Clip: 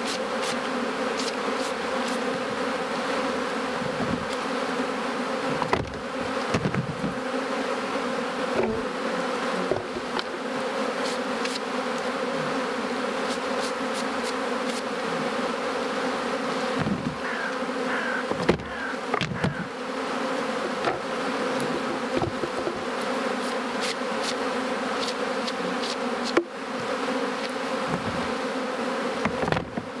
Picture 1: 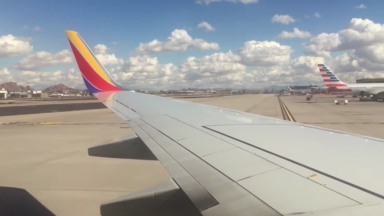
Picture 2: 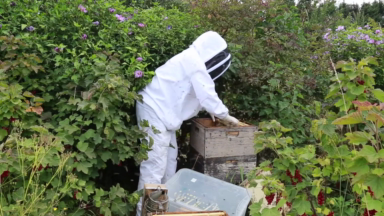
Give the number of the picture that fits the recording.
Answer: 2